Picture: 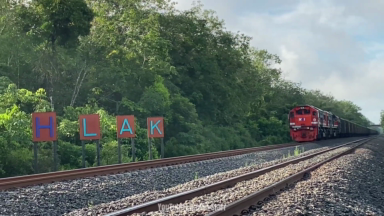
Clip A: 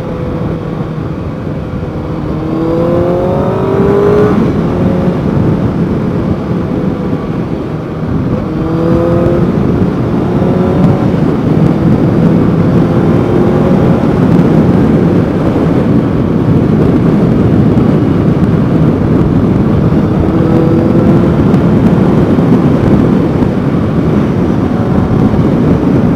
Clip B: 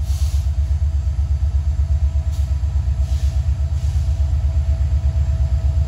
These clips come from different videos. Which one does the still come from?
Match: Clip B